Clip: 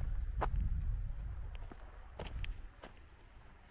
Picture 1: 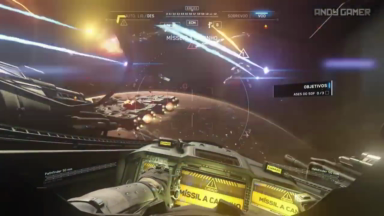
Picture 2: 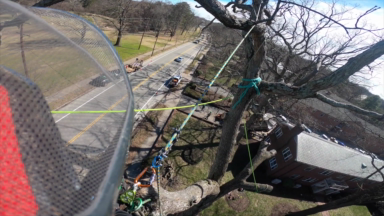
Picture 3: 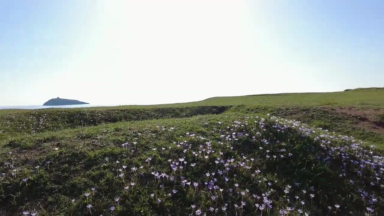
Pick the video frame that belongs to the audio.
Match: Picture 3